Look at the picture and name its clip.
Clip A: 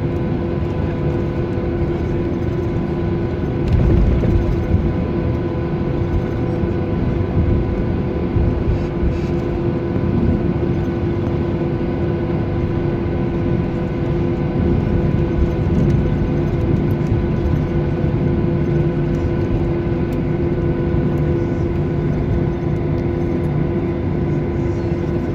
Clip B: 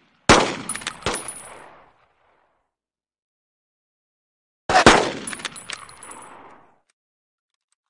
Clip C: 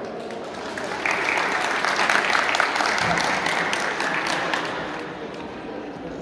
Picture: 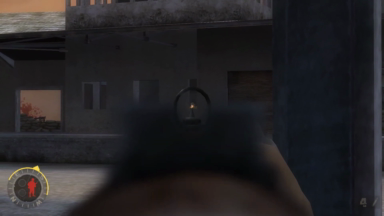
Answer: B